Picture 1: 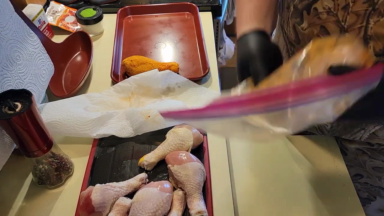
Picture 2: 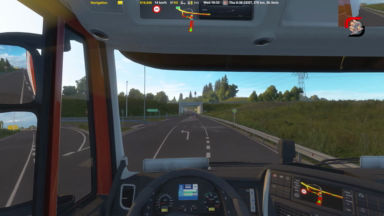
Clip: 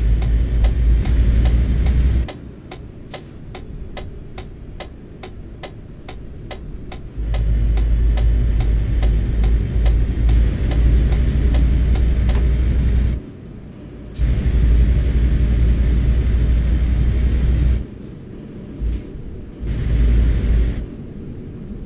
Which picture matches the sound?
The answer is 2